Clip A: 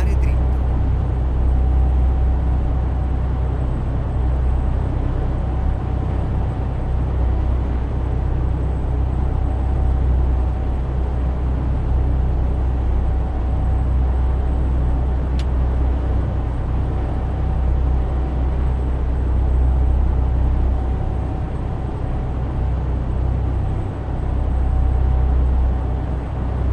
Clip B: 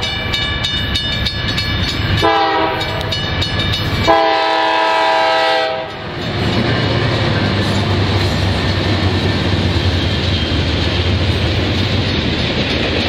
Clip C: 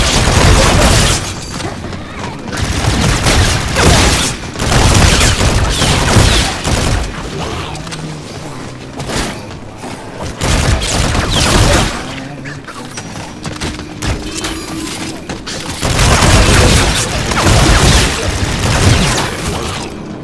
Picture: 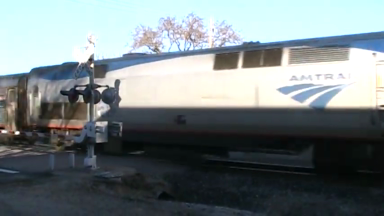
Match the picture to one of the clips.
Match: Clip B